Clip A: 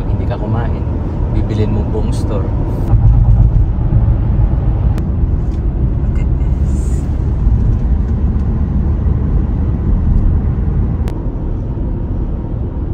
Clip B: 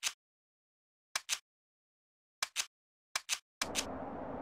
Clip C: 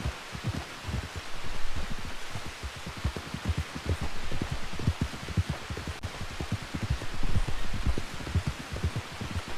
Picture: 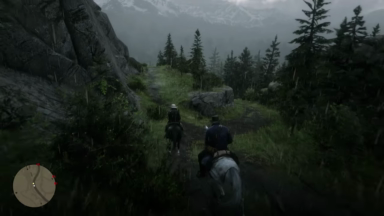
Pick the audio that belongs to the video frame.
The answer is C